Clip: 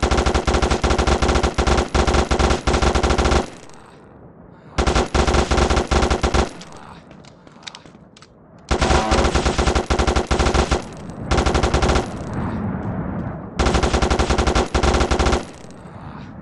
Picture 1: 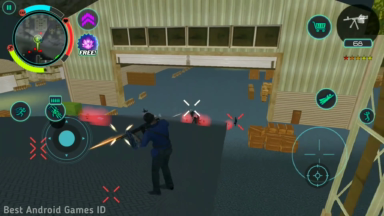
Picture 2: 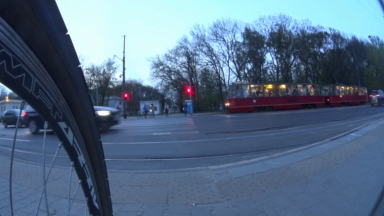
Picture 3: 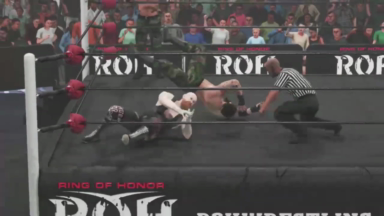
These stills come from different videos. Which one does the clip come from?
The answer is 1